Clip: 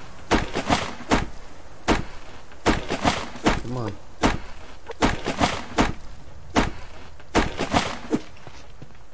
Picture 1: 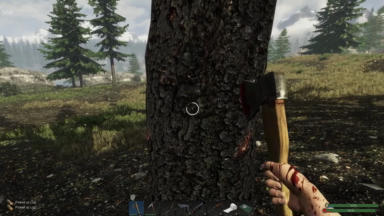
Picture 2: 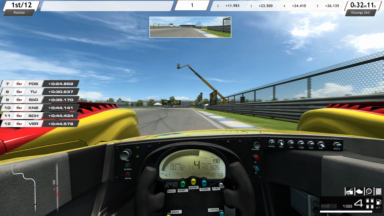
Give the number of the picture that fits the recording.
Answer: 1